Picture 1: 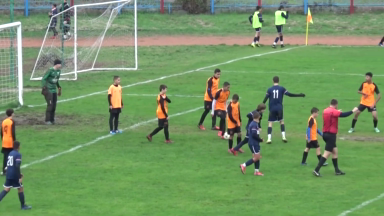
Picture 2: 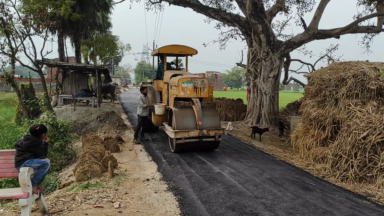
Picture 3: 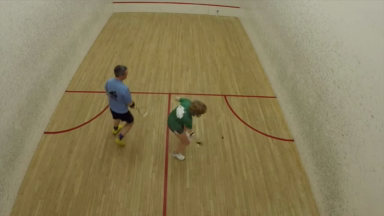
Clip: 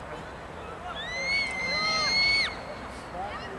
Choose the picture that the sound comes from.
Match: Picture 1